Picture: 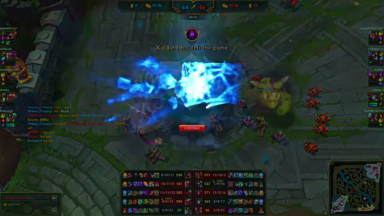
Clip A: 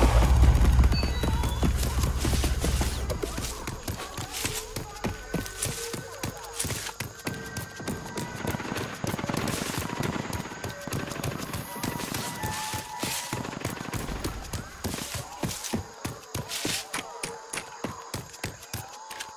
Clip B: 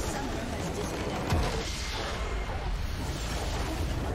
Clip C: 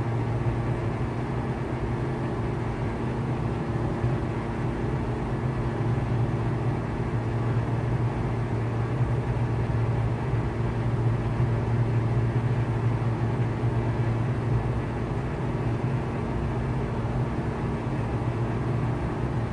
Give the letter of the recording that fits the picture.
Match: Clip B